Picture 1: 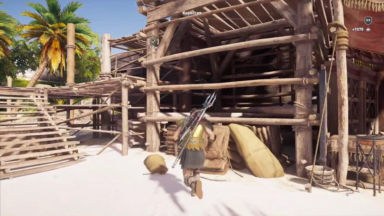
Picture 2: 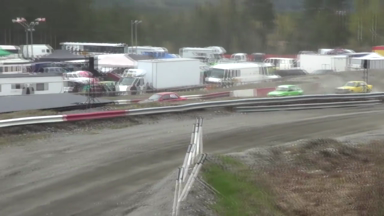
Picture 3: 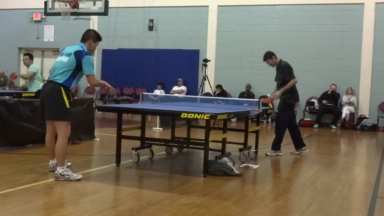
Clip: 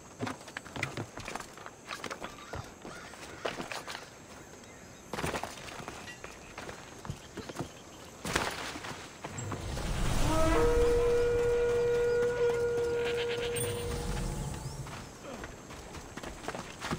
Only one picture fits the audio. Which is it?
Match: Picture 1